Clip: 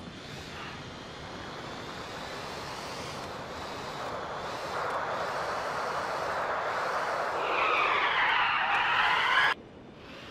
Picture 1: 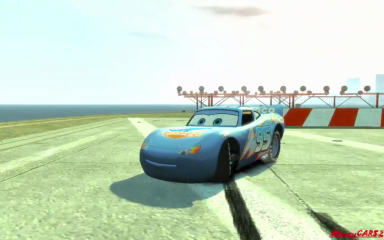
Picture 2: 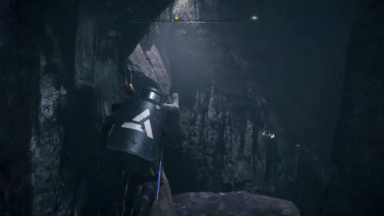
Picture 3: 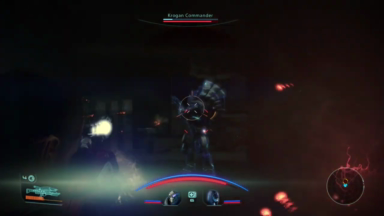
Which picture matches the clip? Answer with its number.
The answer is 1